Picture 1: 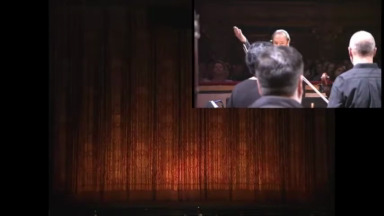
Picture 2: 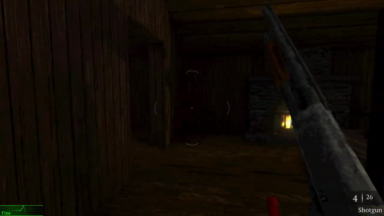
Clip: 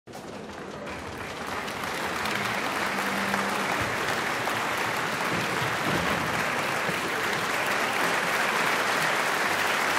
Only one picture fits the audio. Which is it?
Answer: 1